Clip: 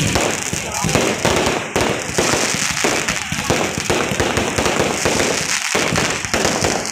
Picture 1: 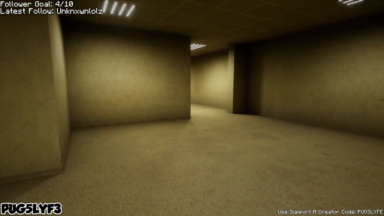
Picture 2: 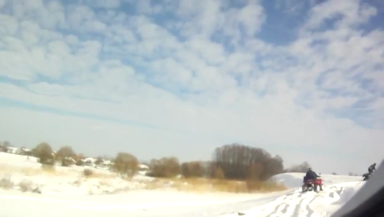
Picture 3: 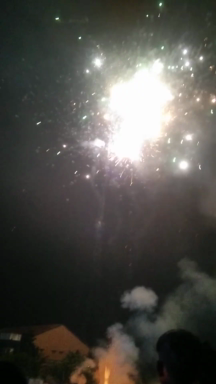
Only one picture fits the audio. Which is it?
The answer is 3